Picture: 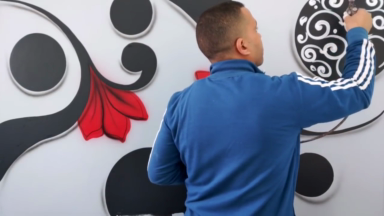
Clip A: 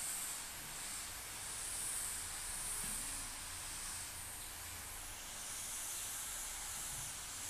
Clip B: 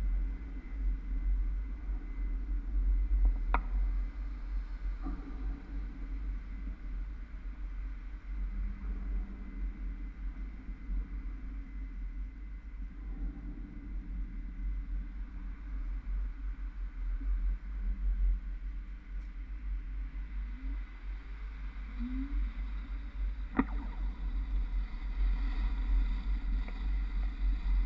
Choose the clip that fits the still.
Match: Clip A